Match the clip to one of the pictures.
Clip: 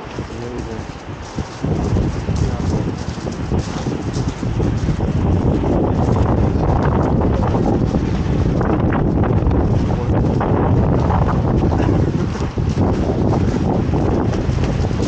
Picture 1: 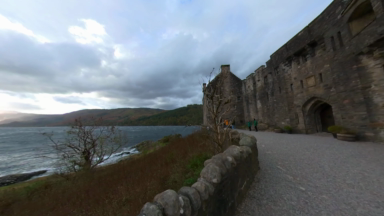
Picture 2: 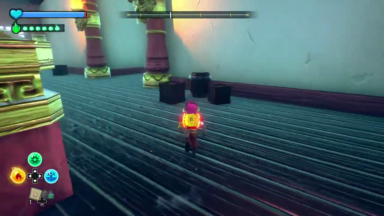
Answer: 1